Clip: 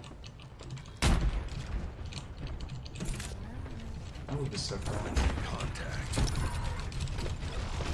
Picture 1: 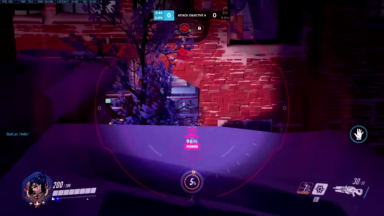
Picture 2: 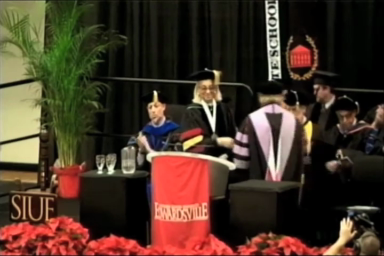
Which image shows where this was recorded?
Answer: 1